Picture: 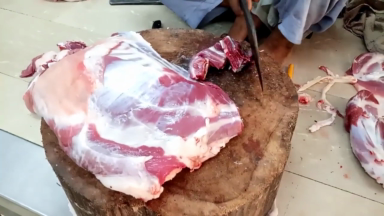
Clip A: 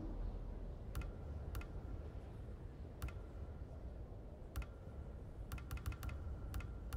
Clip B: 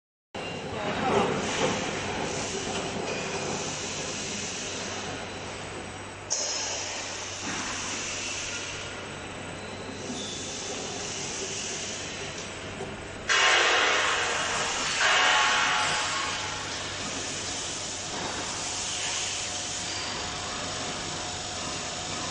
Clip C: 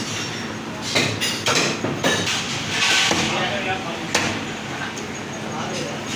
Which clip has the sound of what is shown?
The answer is C